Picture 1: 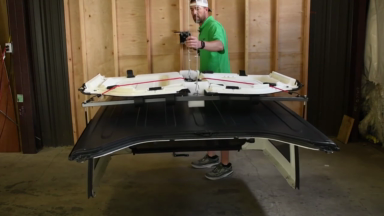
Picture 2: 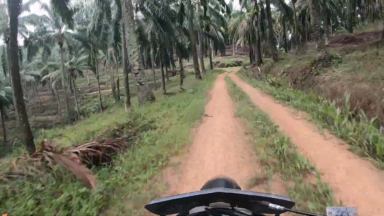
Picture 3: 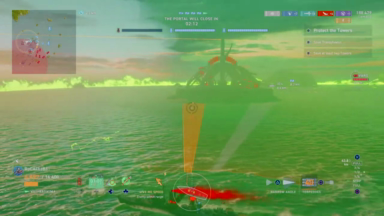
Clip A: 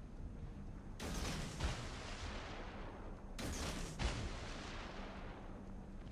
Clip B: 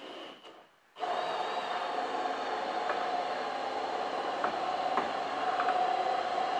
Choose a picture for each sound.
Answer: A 3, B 1